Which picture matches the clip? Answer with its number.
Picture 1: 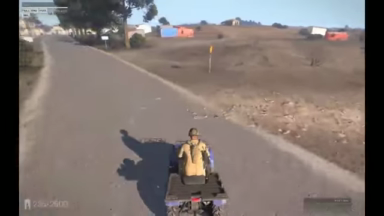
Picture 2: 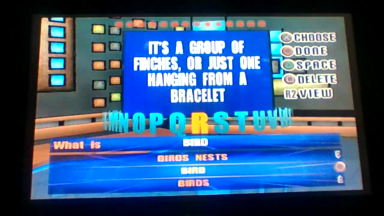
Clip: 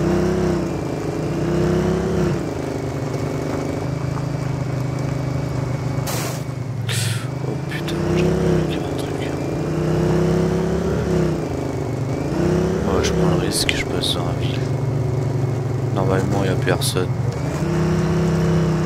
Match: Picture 1